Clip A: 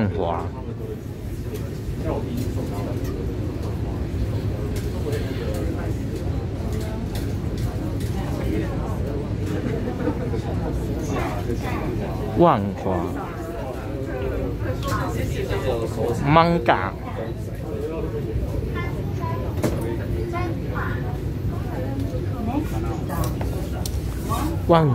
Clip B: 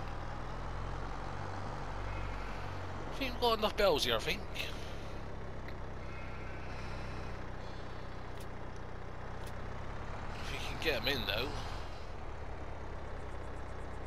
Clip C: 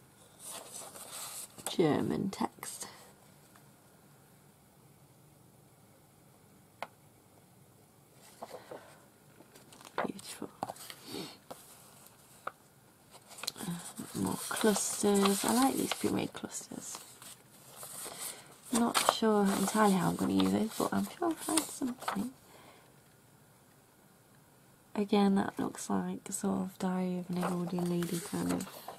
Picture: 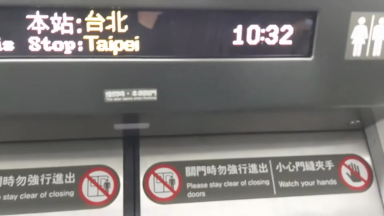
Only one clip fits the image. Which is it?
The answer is A